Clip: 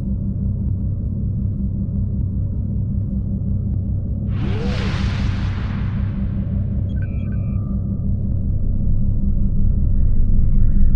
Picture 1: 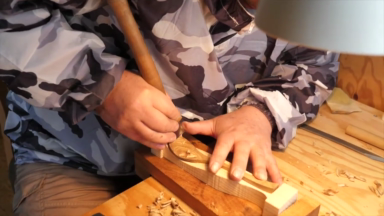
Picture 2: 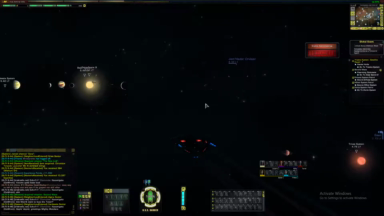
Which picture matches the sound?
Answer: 2